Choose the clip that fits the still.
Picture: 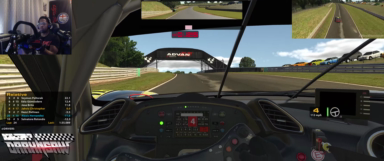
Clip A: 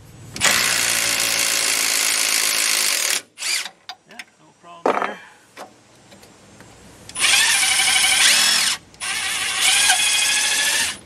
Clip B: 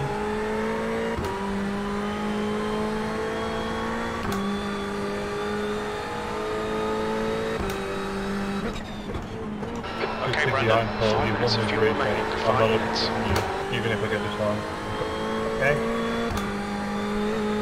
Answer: B